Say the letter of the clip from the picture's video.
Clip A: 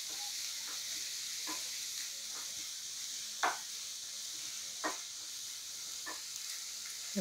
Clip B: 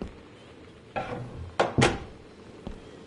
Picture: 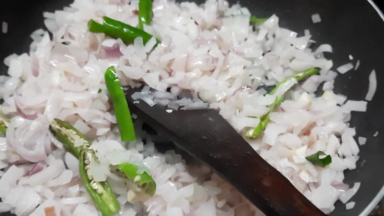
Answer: A